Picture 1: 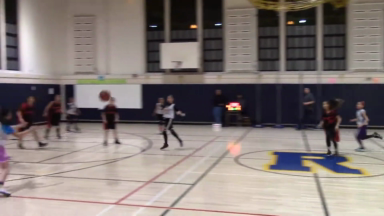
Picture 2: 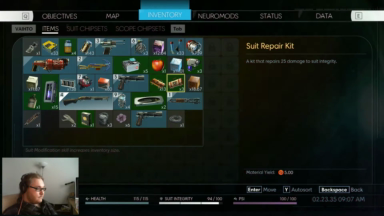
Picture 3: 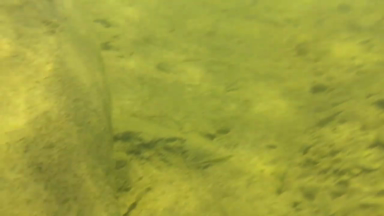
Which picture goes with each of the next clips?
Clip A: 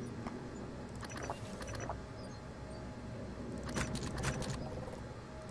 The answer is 2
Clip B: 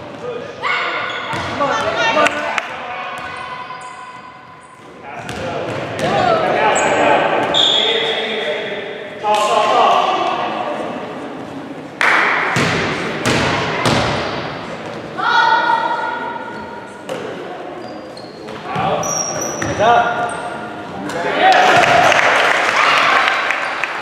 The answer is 1